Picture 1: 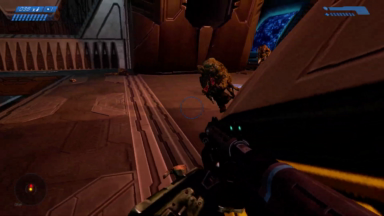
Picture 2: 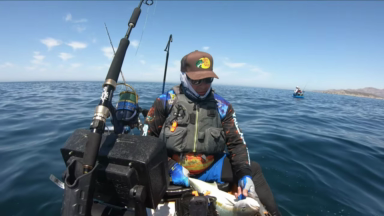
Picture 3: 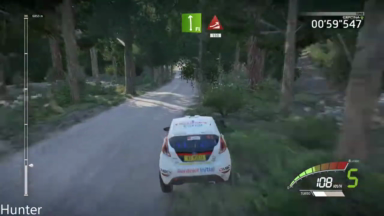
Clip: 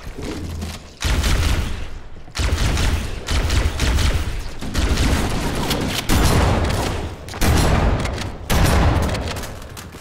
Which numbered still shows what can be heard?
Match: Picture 1